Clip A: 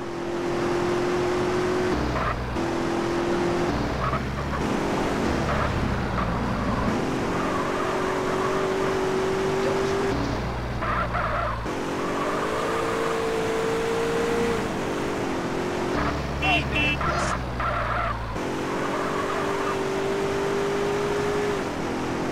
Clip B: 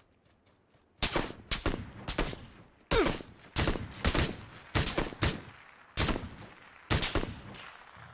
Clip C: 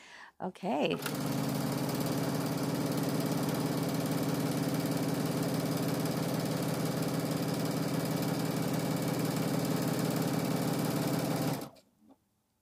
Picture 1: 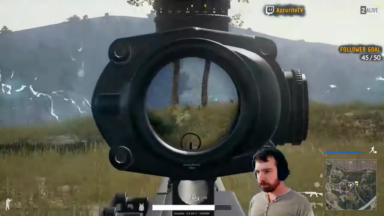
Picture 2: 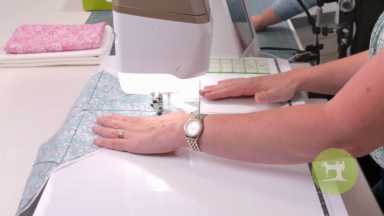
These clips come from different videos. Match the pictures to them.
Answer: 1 B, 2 C